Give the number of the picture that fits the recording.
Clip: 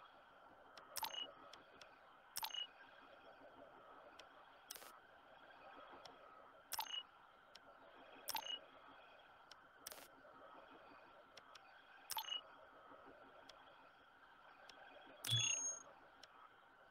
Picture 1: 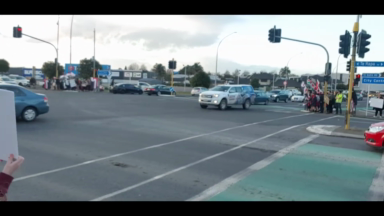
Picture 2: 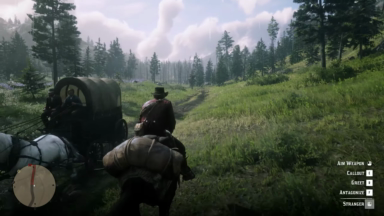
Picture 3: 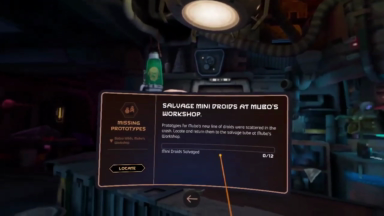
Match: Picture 3